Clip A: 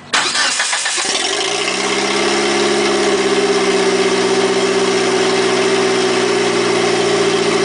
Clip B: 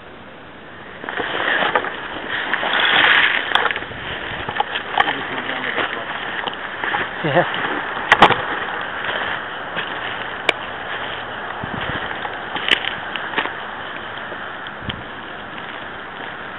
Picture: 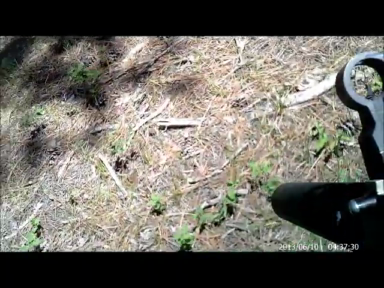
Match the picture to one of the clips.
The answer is B